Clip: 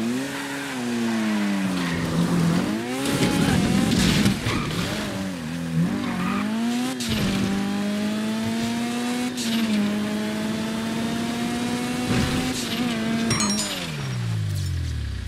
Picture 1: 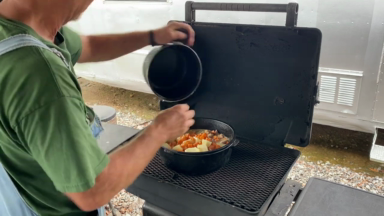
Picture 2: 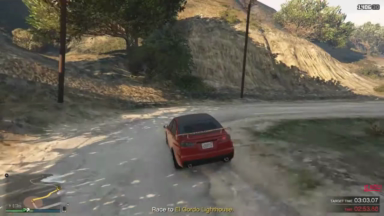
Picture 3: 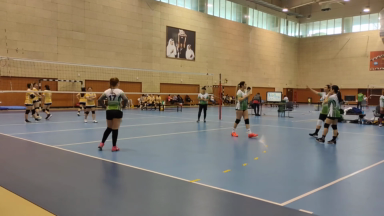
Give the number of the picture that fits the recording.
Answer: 2